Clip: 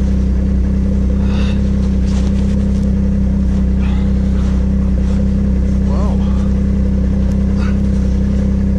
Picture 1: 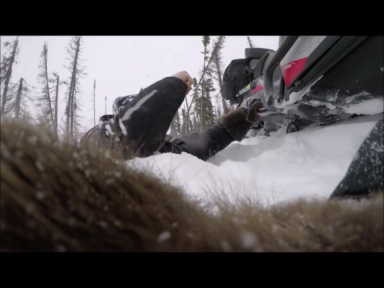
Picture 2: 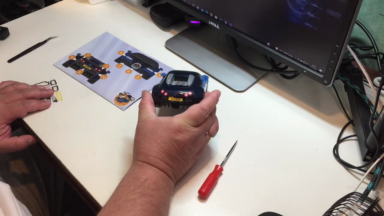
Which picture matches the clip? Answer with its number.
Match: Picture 1